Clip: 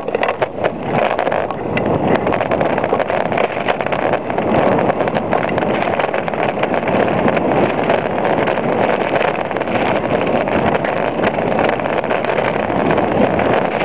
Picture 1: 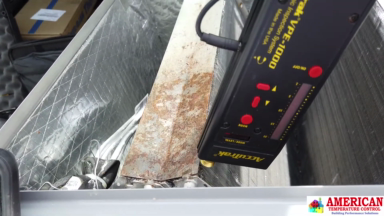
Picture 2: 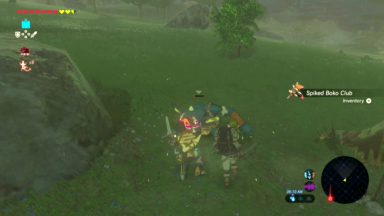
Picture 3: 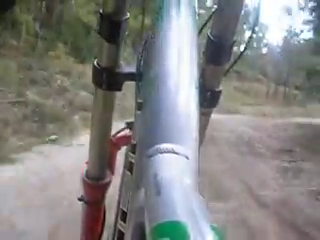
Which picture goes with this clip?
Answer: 3